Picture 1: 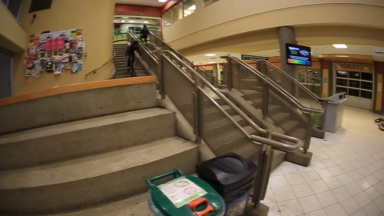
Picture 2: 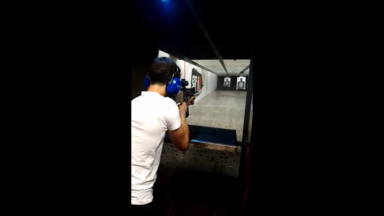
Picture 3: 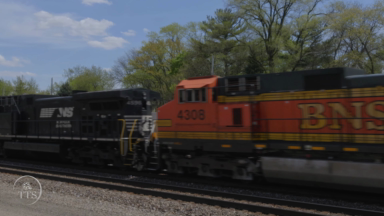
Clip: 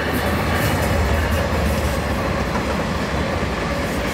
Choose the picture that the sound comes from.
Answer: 3